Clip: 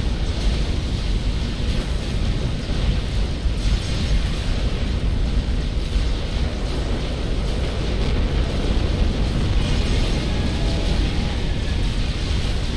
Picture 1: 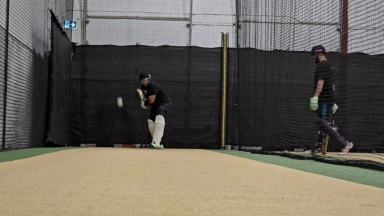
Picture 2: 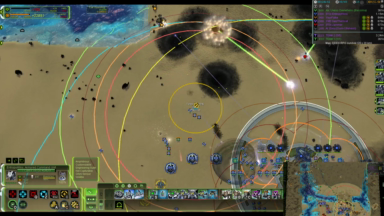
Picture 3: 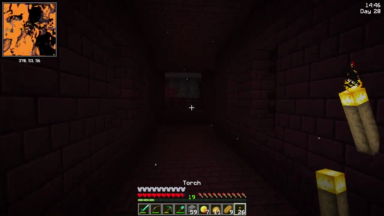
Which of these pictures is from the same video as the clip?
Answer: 2